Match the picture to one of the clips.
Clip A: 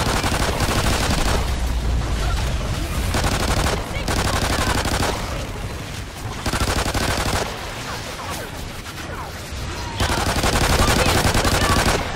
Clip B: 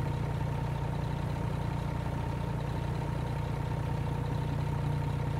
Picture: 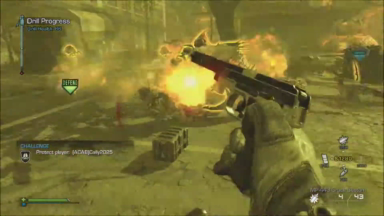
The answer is A